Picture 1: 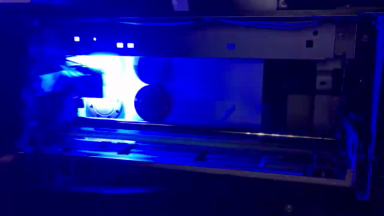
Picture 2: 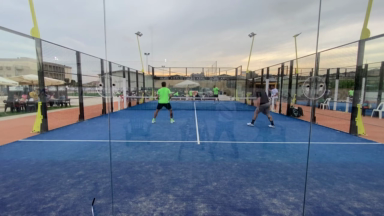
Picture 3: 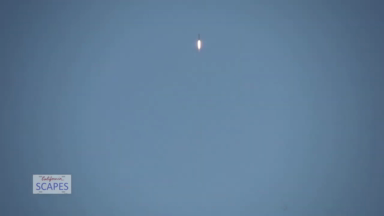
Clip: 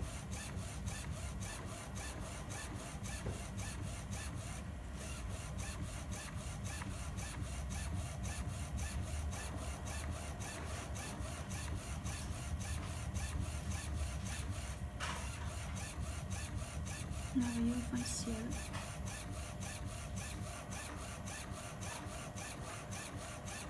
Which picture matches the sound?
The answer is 1